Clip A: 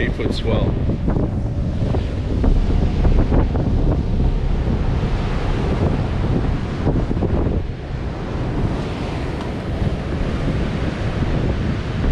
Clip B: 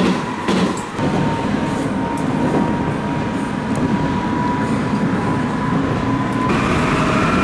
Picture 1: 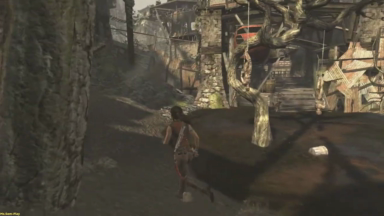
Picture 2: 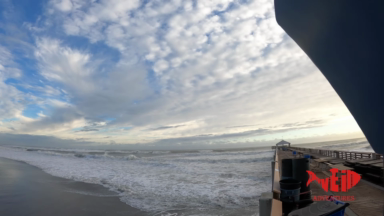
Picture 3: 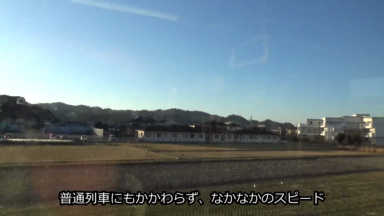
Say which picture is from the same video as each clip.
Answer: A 2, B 3